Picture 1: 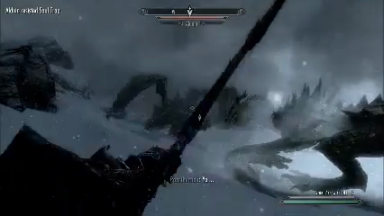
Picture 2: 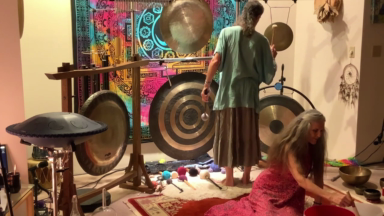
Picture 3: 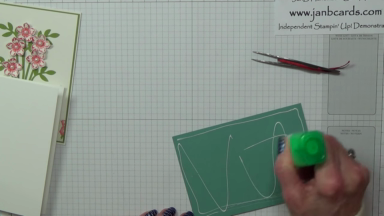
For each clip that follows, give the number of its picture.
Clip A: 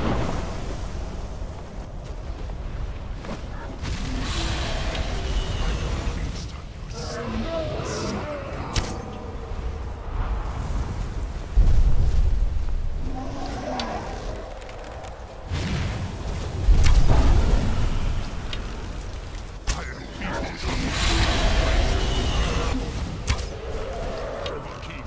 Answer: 1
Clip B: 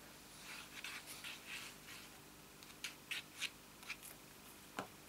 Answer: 3